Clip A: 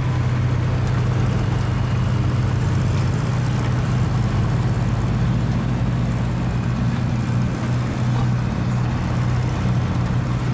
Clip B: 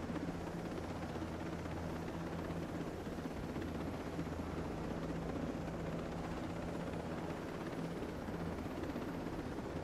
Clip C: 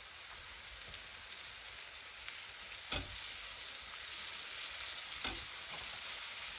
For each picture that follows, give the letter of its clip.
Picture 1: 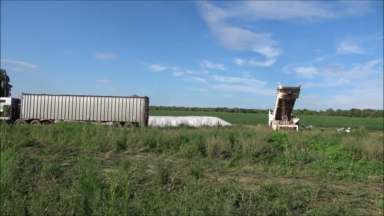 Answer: A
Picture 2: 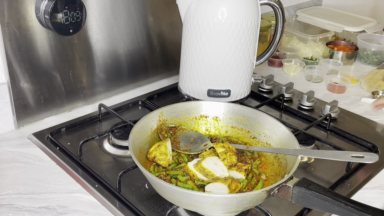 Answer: C